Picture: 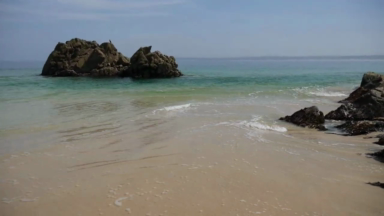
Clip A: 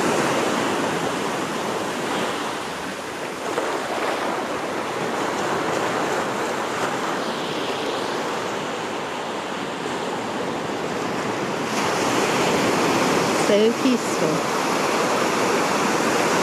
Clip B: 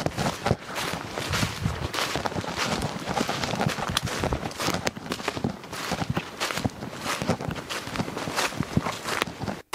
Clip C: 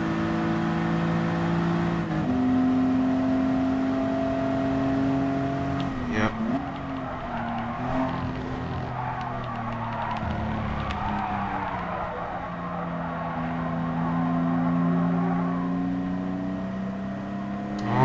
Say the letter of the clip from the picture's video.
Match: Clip A